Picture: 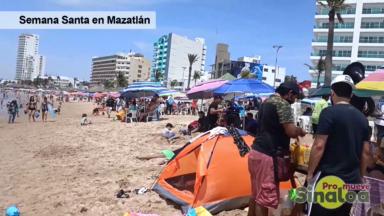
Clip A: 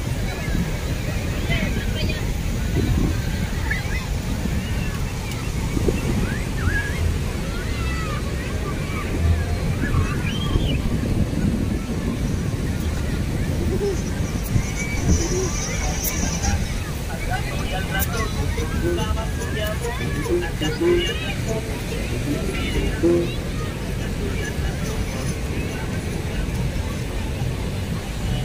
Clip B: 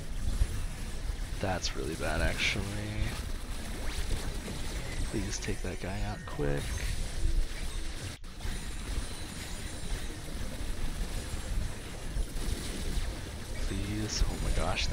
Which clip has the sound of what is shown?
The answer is A